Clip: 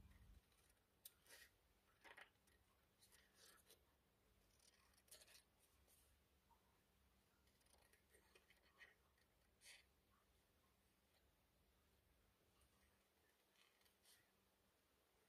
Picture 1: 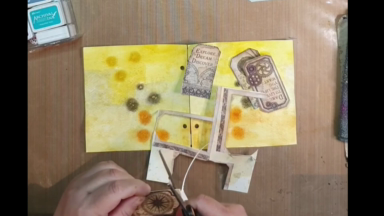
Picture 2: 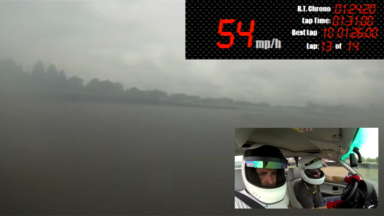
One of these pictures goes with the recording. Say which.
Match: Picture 1